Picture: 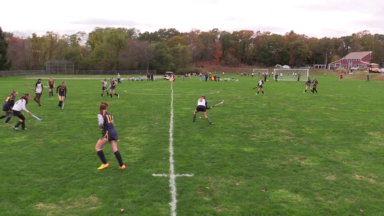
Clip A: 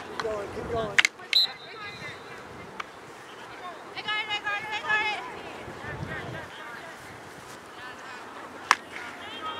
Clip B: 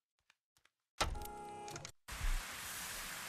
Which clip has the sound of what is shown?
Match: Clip A